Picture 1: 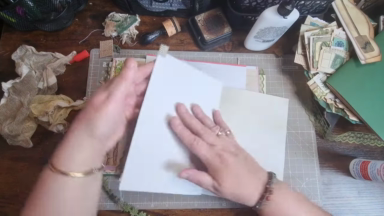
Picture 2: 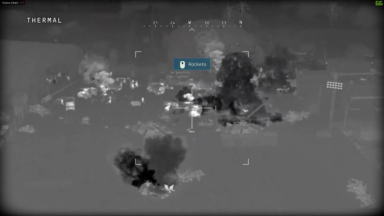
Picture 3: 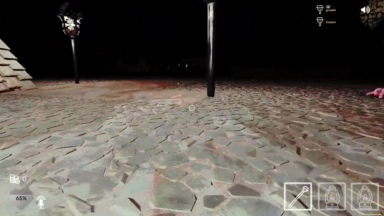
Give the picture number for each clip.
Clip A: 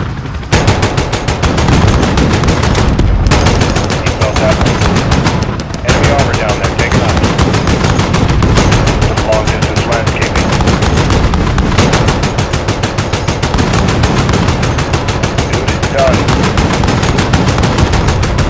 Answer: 2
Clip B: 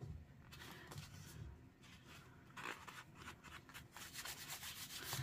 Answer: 1